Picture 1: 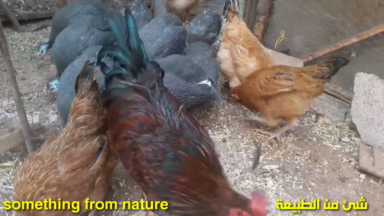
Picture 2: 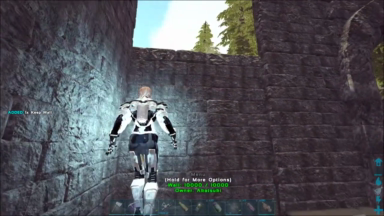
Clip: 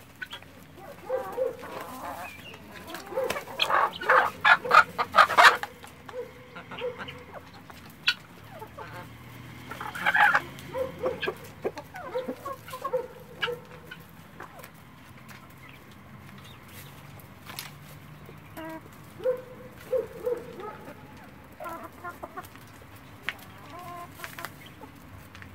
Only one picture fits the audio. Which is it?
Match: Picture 1